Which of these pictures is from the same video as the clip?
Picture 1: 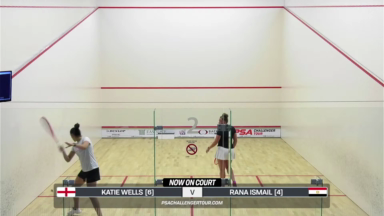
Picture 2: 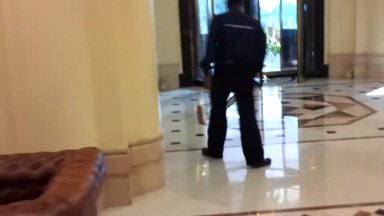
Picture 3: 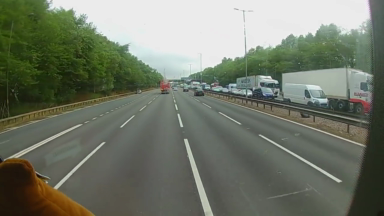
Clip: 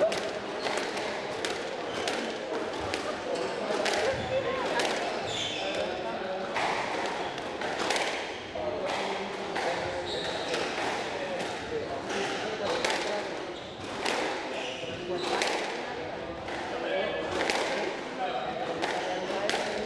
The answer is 1